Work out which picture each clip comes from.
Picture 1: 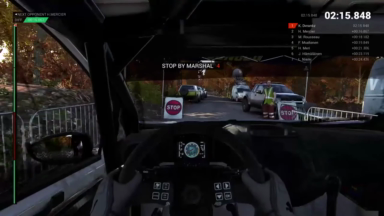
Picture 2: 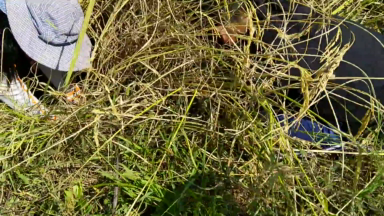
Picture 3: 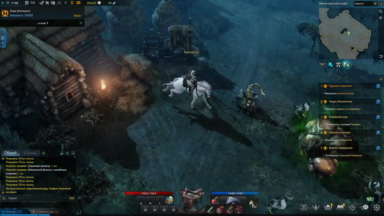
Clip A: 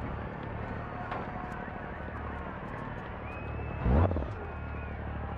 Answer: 1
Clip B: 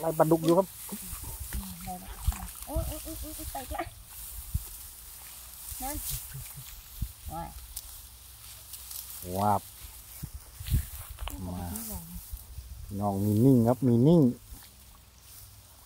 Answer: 2